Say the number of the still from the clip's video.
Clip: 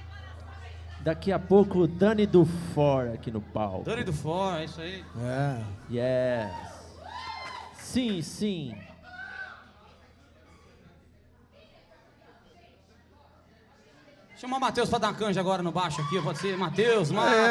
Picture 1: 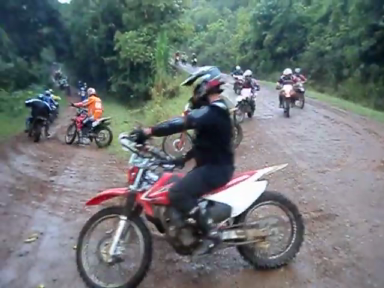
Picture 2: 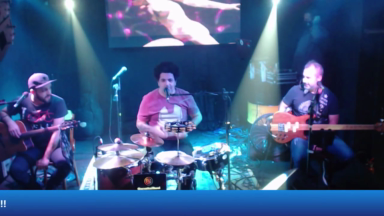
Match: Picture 2